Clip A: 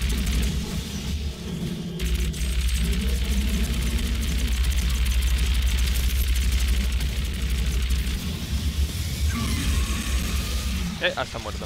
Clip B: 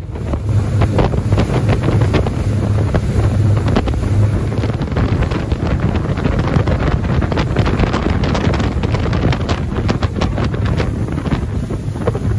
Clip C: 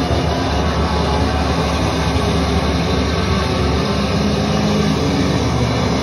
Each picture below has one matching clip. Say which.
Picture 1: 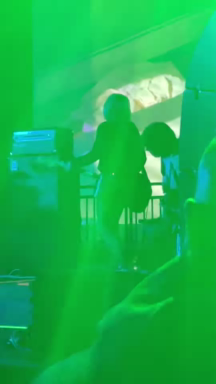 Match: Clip C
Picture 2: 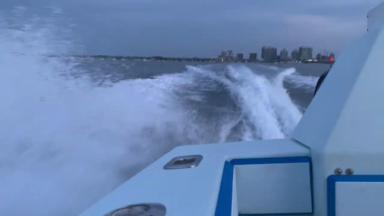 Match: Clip B